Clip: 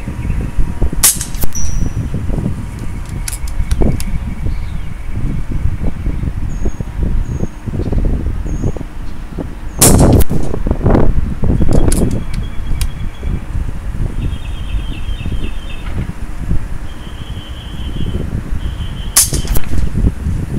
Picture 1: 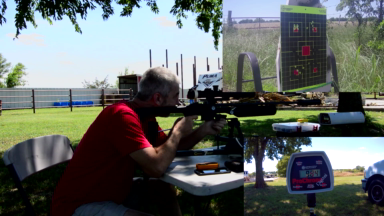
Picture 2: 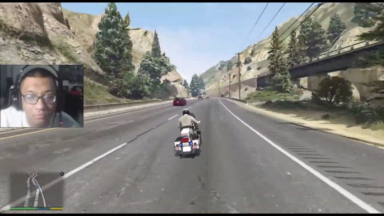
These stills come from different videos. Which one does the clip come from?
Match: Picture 1